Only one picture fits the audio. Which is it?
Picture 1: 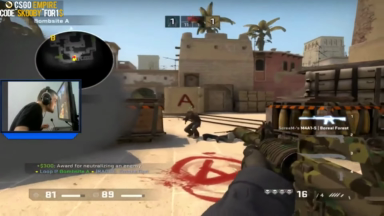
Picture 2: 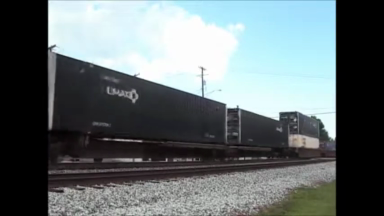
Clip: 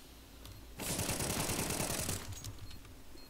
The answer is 1